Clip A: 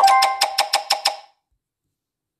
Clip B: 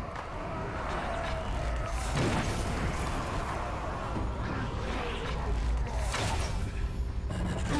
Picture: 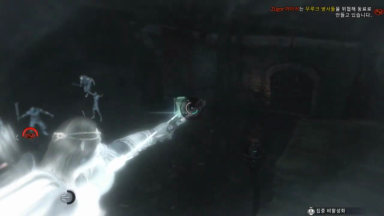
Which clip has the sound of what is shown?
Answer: B